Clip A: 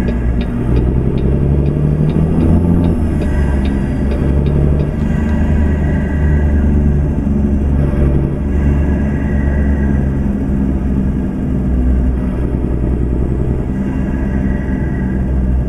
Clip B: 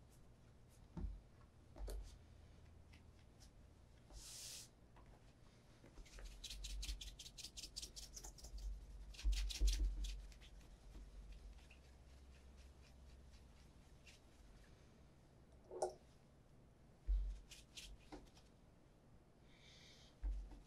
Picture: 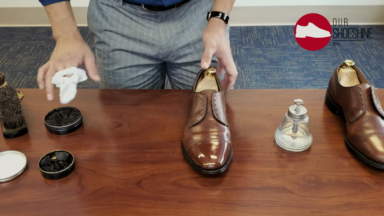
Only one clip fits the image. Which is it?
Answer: B